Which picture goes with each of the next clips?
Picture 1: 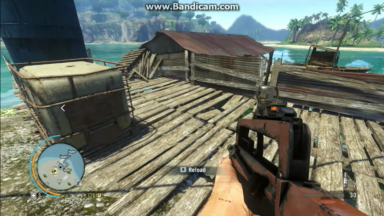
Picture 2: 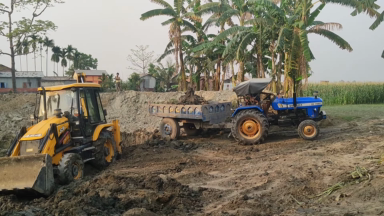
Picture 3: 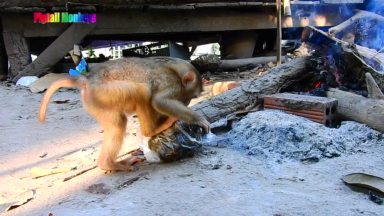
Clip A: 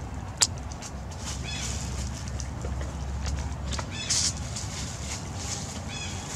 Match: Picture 3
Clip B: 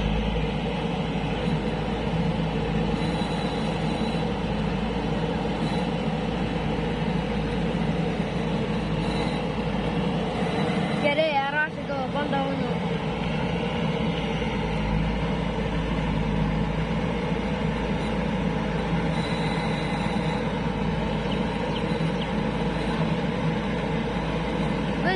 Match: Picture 2